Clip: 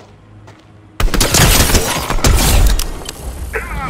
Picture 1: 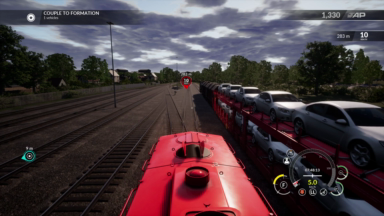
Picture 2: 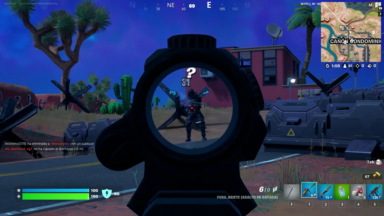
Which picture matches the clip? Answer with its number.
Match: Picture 2